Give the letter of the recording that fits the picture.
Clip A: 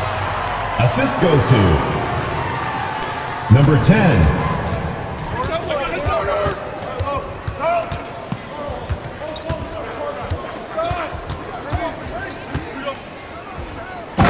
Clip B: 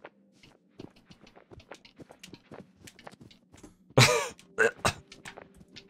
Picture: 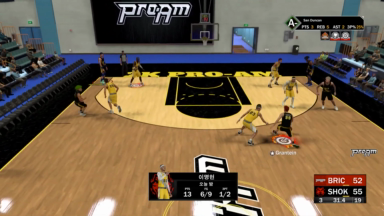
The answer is A